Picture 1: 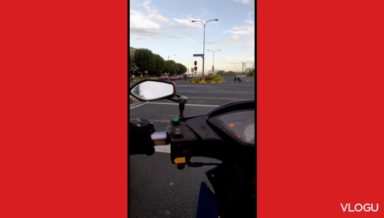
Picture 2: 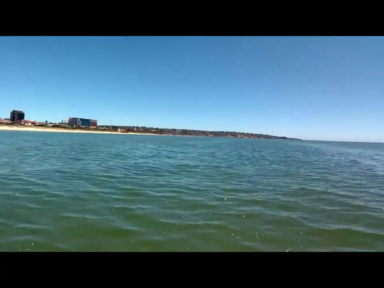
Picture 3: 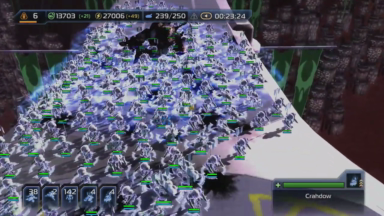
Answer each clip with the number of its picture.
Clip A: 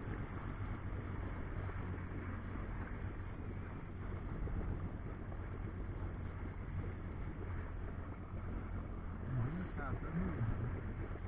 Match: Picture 2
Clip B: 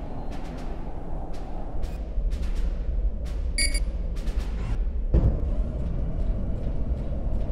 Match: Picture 3